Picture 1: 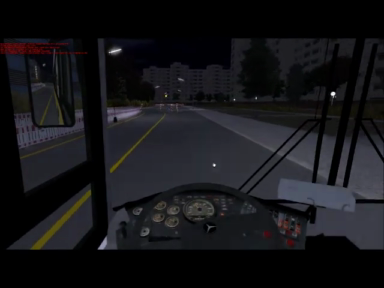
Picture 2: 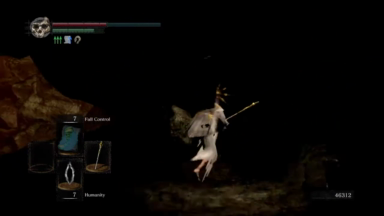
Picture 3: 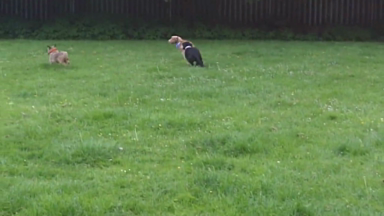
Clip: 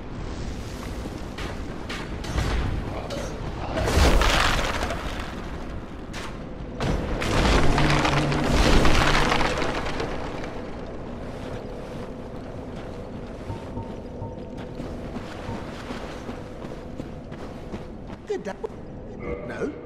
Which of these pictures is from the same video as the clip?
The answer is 2